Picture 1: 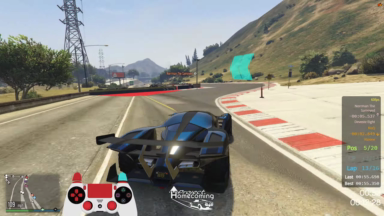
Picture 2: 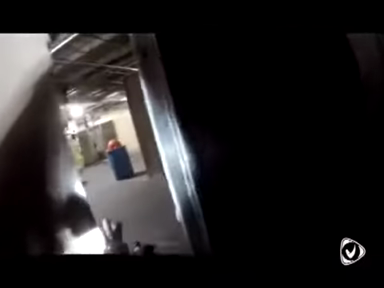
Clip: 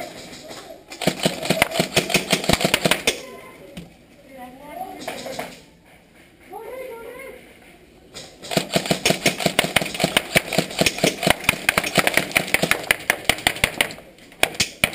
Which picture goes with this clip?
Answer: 2